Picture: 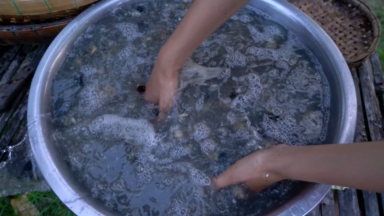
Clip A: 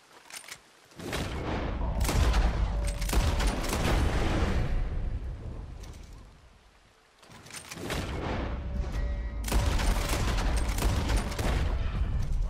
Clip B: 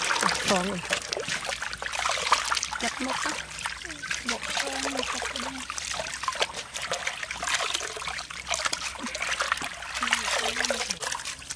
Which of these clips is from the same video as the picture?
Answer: B